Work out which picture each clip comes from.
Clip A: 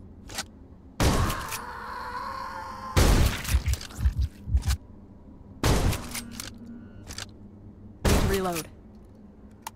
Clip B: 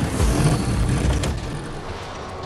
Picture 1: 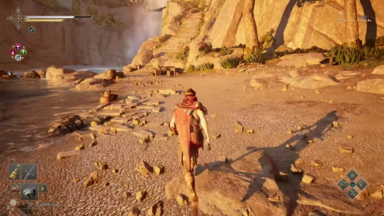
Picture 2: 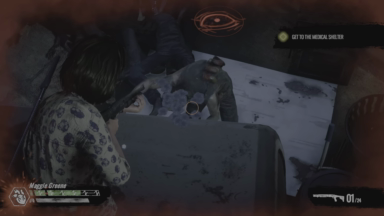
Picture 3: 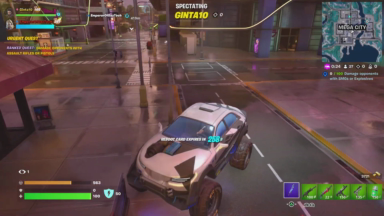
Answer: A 2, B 3